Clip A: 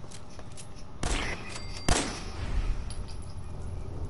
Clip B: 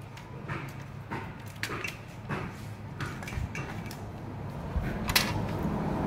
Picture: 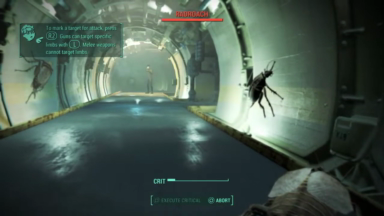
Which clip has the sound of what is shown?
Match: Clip A